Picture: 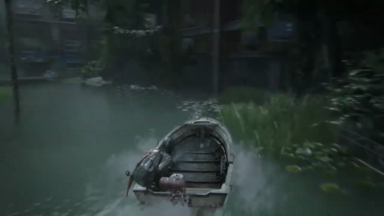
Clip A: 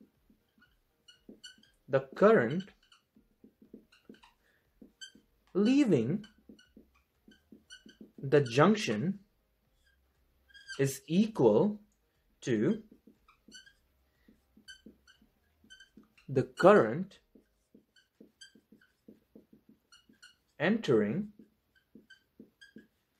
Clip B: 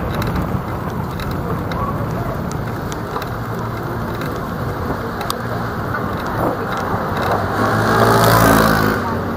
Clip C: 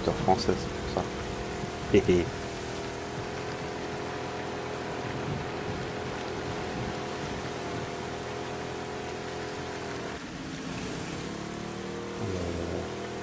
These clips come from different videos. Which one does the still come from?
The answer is C